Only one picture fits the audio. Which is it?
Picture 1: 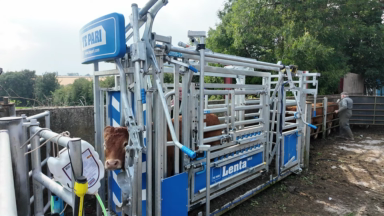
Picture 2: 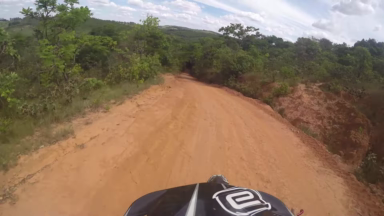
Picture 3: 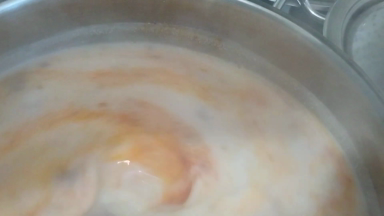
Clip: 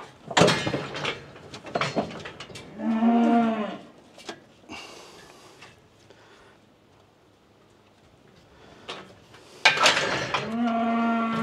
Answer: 1